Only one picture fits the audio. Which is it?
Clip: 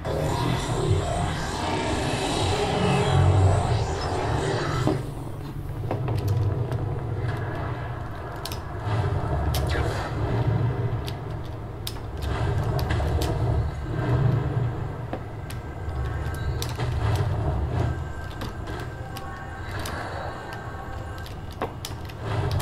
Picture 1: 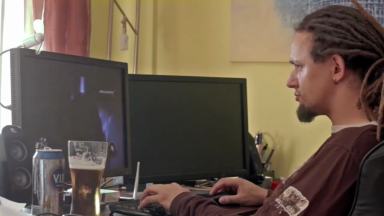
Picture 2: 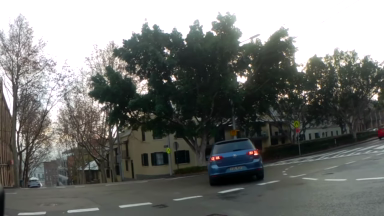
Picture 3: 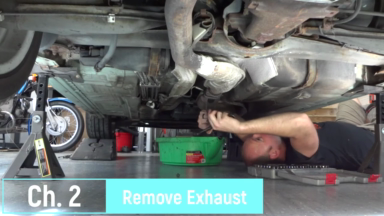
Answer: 1